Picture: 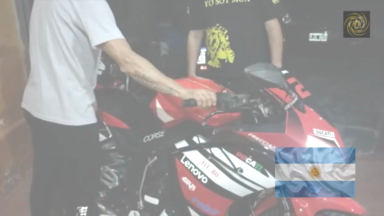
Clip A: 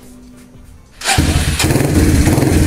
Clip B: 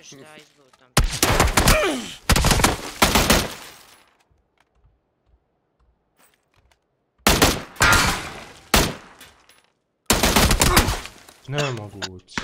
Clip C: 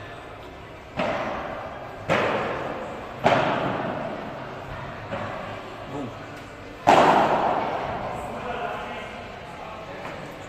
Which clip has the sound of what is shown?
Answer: A